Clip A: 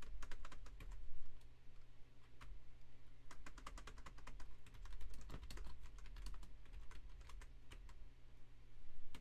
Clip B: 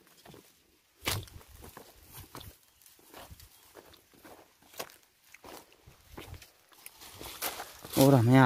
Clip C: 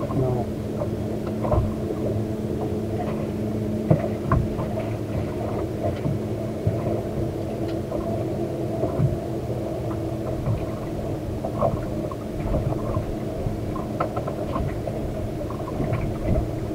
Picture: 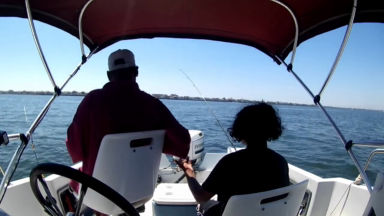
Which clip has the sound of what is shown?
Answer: C